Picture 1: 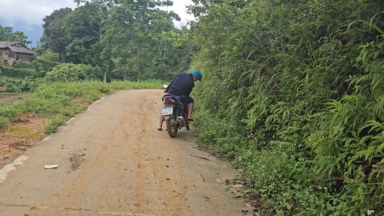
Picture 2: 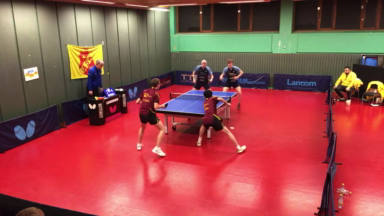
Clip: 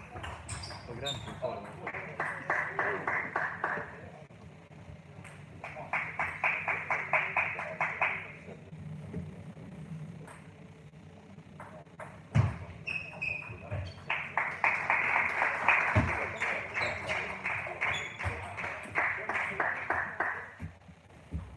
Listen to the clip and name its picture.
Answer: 2